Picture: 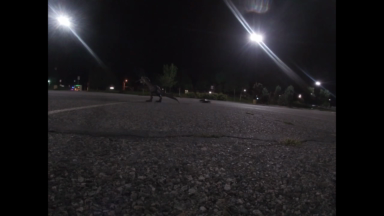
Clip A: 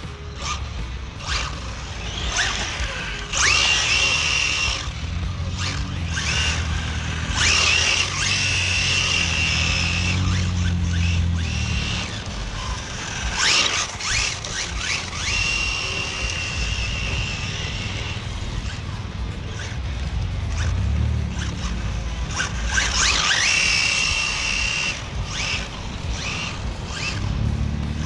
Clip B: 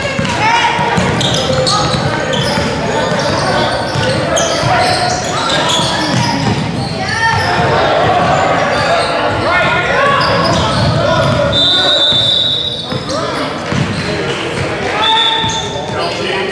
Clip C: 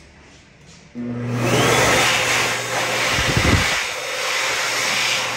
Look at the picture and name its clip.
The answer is A